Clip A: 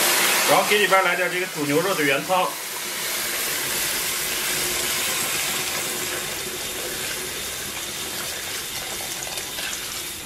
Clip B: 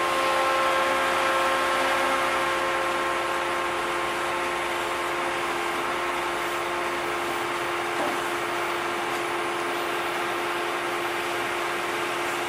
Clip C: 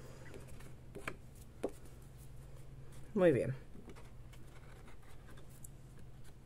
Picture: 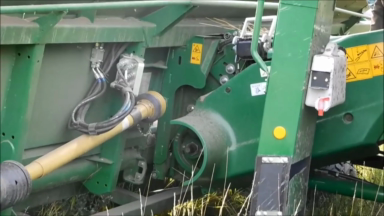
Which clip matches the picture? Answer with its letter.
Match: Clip B